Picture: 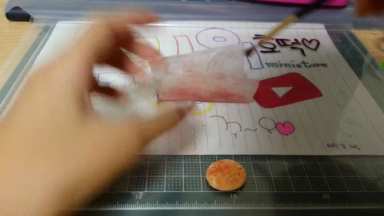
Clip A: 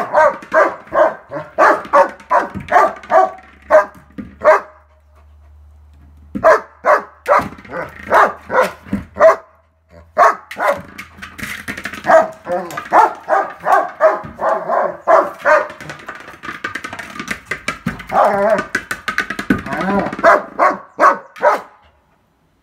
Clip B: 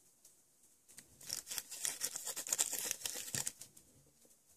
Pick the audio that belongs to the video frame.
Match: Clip B